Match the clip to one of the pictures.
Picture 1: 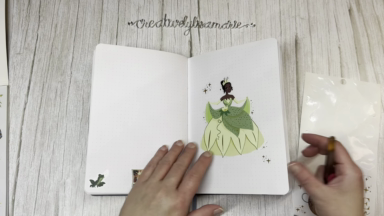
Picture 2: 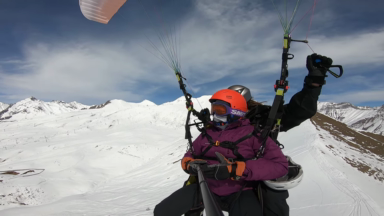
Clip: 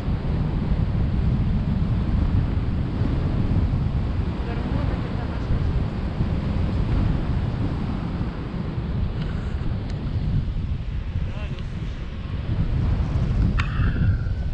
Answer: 2